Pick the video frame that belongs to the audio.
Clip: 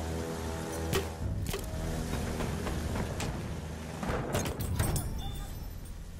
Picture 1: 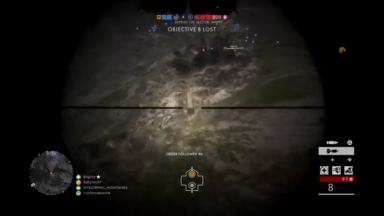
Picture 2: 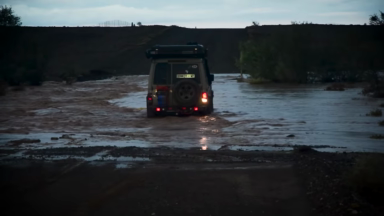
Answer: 1